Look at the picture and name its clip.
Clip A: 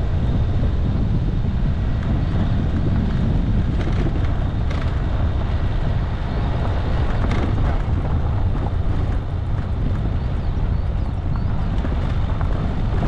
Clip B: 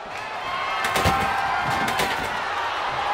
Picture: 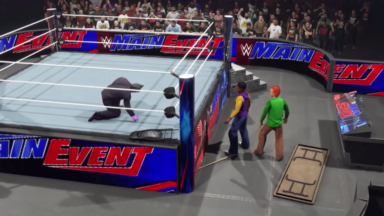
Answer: B